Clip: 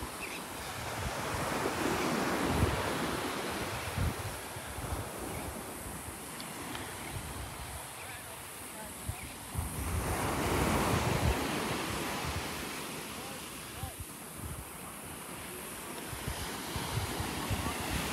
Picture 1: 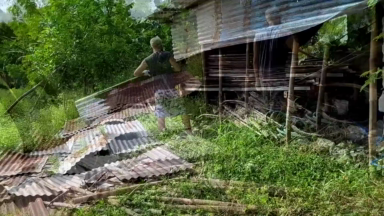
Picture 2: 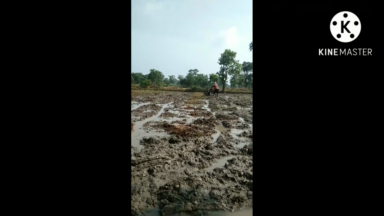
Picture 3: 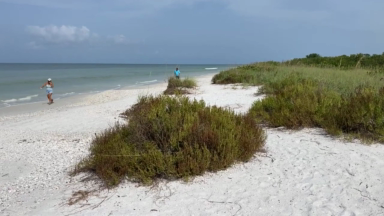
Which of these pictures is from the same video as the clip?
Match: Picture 3